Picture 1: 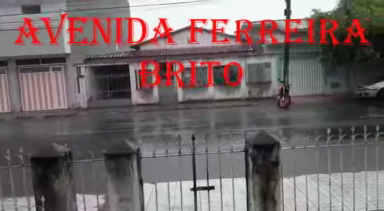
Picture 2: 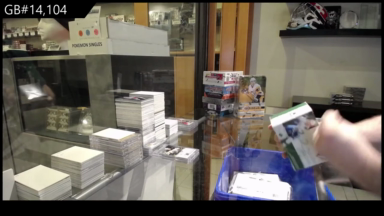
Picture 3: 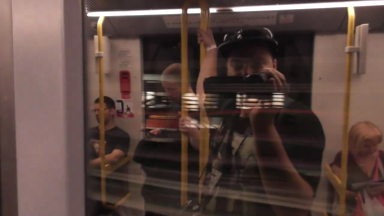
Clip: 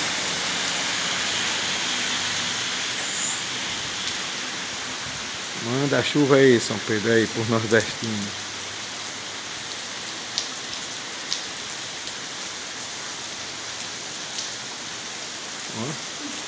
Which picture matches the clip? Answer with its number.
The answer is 1